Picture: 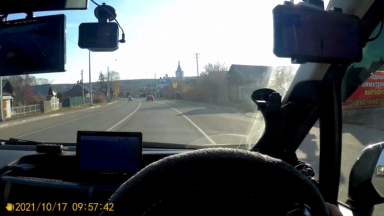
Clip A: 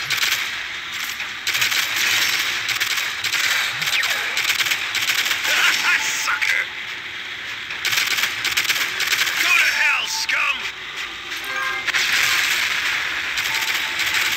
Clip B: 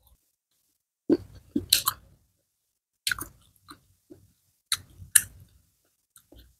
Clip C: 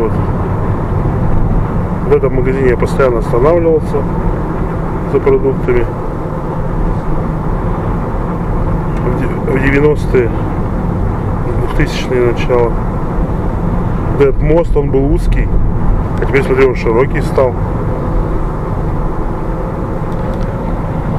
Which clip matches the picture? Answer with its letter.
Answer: C